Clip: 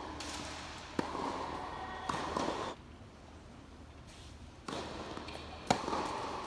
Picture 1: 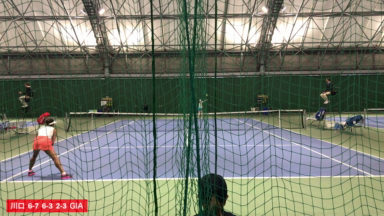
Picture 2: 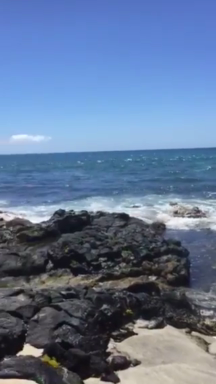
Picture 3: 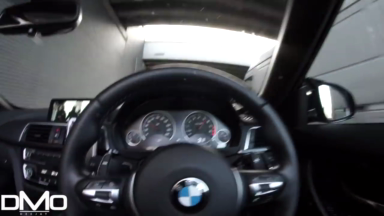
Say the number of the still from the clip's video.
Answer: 1